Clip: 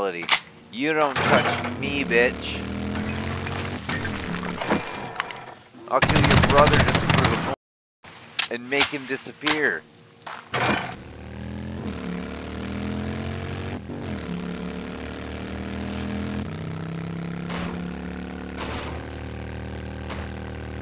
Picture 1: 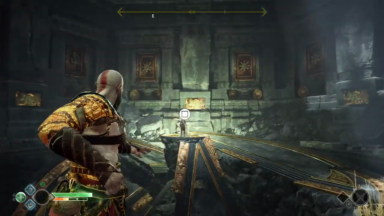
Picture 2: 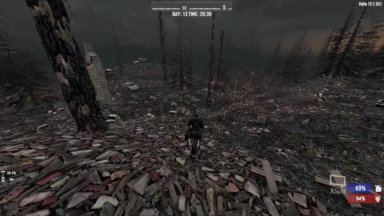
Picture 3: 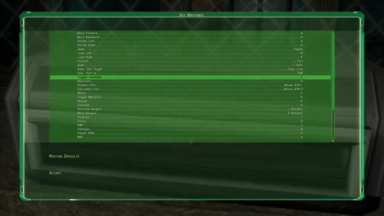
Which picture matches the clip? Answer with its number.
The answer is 2